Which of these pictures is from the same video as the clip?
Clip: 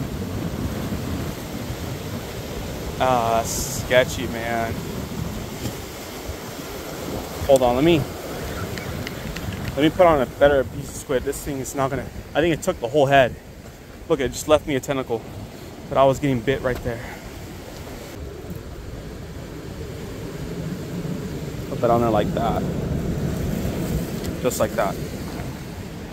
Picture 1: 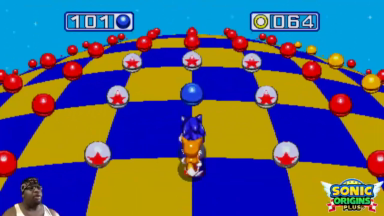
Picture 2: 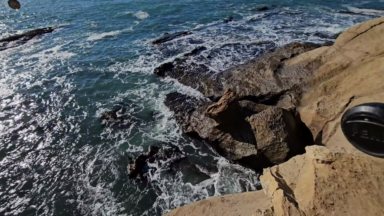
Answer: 2